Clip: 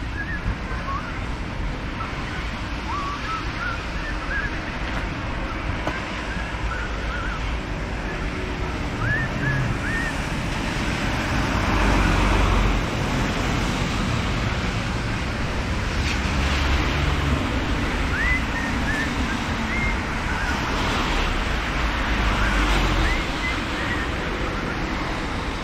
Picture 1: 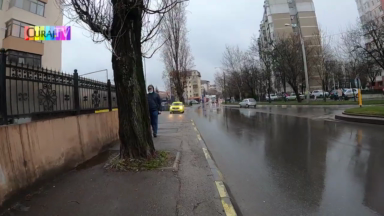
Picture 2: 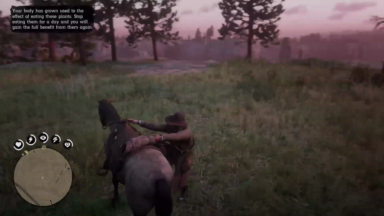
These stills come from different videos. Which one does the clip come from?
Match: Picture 1